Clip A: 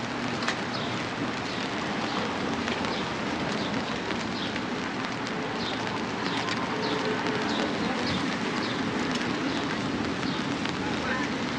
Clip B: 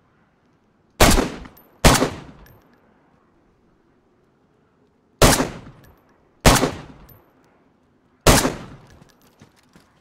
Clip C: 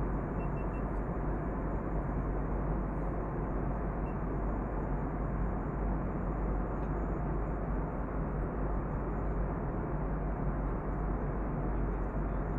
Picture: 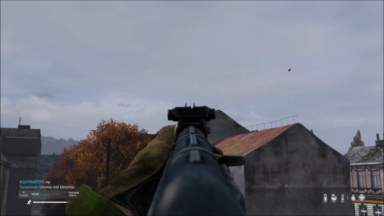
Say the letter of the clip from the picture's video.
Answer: B